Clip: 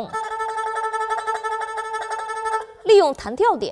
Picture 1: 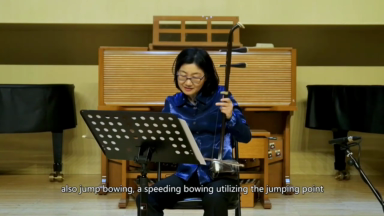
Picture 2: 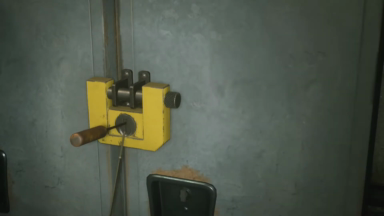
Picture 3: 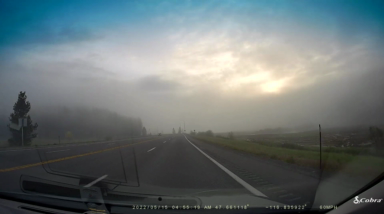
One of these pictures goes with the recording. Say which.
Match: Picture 1